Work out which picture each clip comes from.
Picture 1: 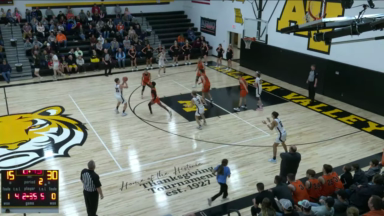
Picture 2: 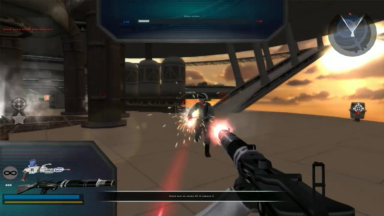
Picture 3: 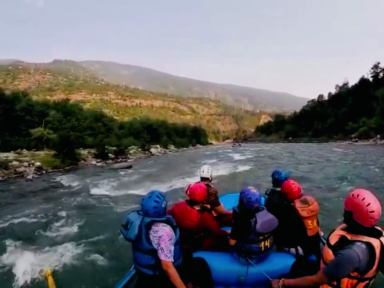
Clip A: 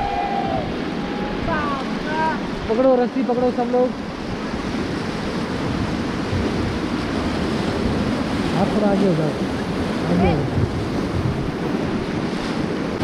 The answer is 3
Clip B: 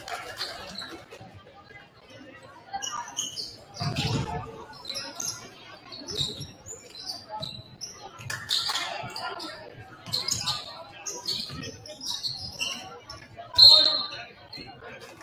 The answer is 1